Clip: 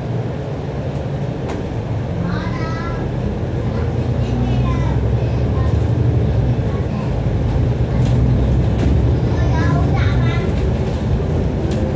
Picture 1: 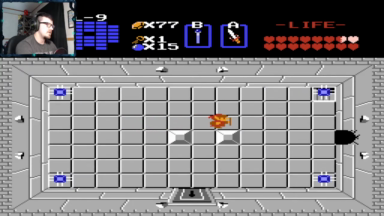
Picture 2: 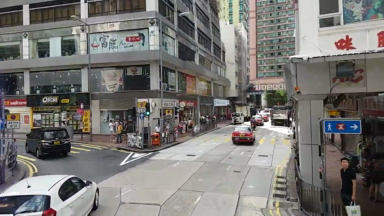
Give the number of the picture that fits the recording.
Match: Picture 2